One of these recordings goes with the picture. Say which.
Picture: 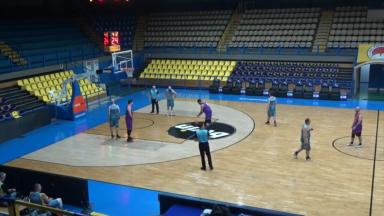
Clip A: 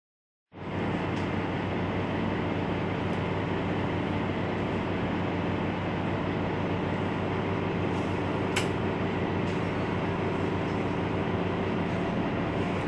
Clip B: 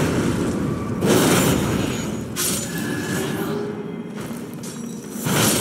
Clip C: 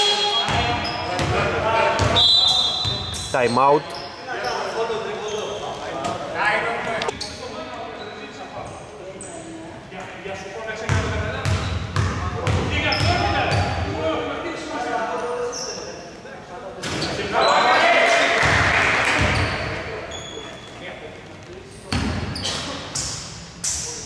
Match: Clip C